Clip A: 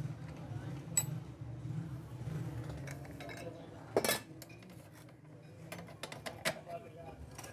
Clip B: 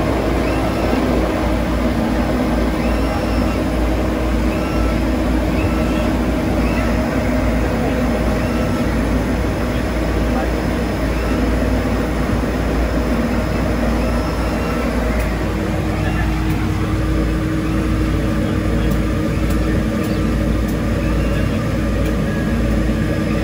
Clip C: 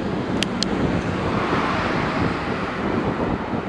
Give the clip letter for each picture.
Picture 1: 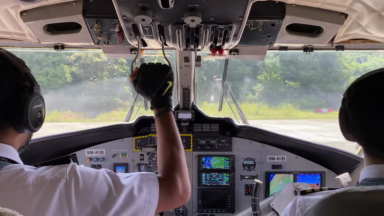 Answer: B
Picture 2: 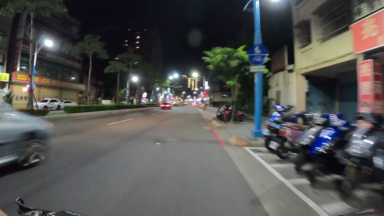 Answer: C